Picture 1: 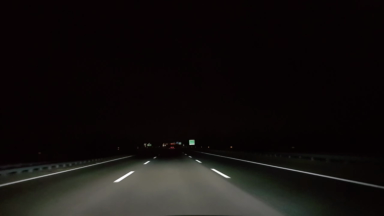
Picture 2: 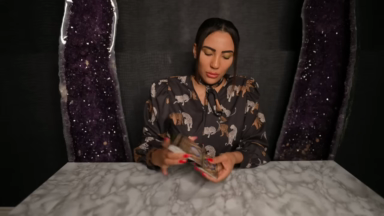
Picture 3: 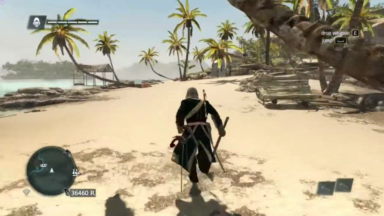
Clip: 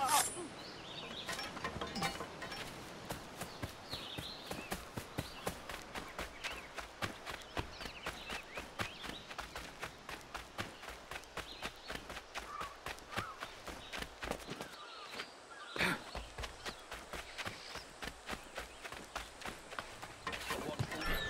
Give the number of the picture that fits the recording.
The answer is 3